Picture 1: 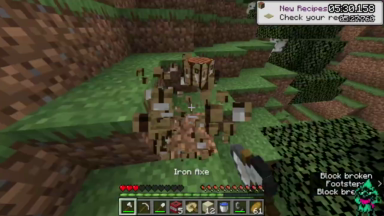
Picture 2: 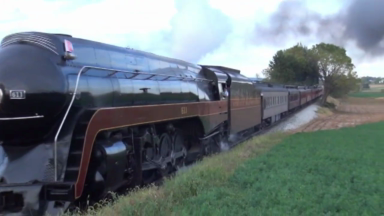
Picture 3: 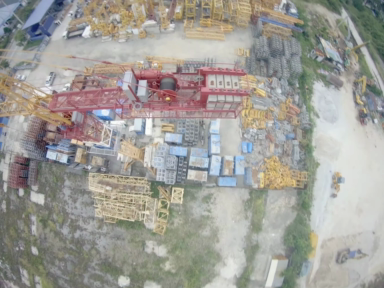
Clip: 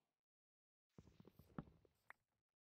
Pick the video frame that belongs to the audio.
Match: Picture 1